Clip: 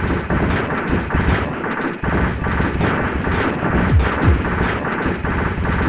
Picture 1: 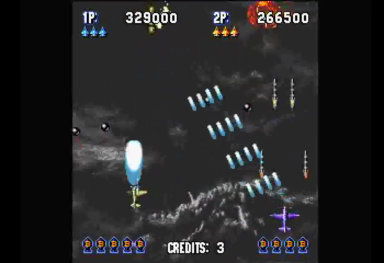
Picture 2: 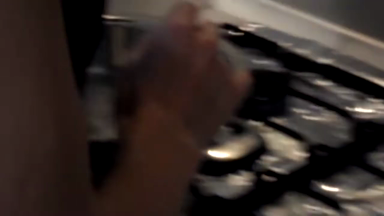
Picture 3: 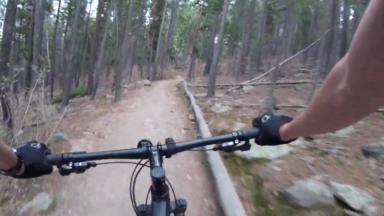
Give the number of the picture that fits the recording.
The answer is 1